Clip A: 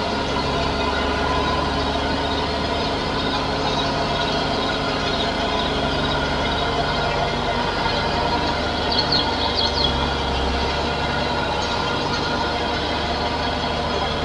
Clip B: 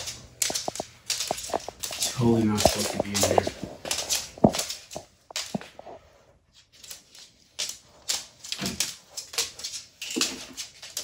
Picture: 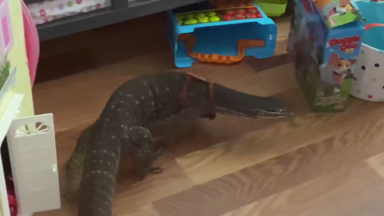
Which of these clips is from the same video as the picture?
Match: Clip B